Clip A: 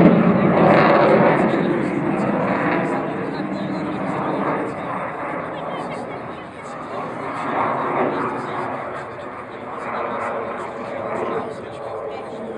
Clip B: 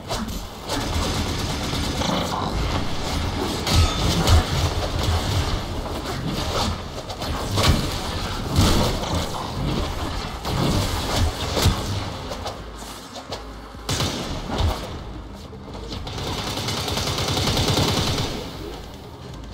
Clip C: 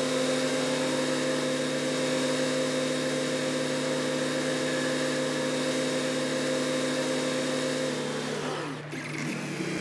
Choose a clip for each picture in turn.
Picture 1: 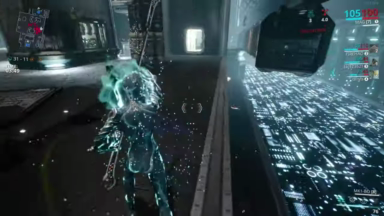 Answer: B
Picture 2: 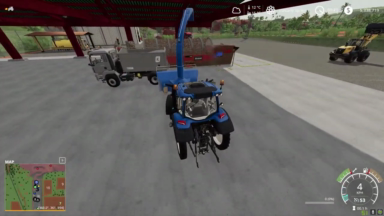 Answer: C